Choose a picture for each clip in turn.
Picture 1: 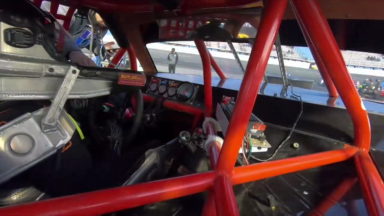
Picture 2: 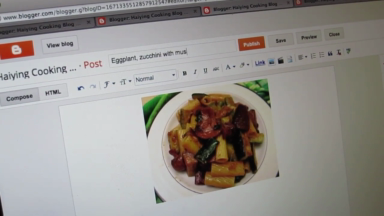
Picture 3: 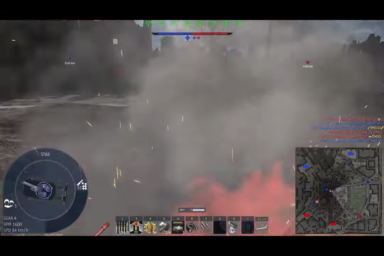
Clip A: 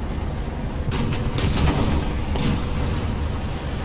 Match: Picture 3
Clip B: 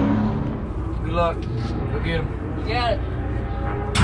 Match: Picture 1